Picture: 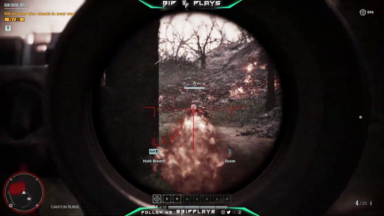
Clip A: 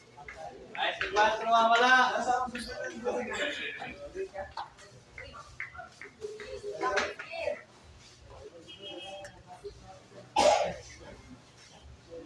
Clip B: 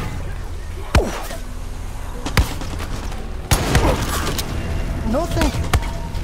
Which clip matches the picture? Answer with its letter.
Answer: B